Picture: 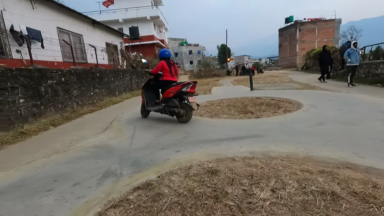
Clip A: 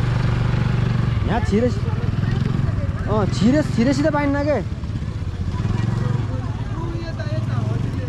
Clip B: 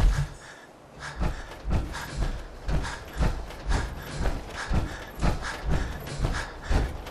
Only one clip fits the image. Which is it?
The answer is A